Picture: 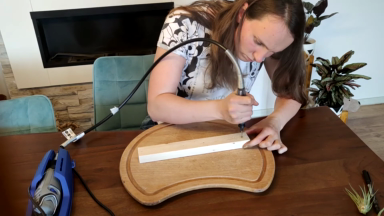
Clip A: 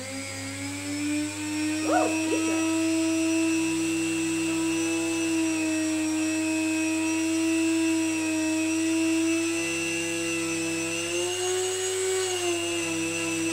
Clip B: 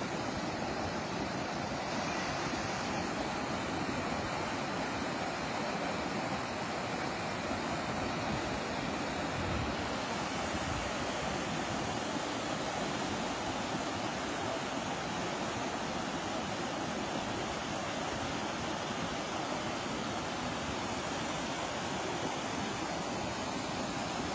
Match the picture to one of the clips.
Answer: A